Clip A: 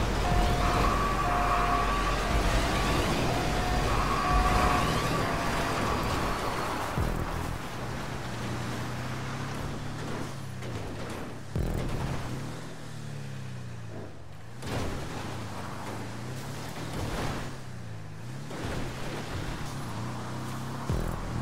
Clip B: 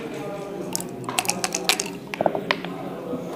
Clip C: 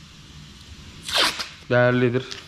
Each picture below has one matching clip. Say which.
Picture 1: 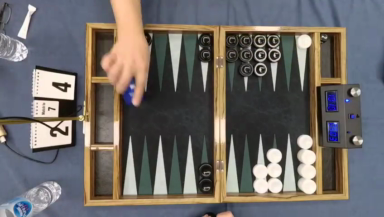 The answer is B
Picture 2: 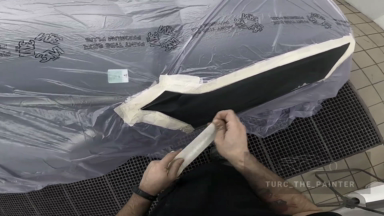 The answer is C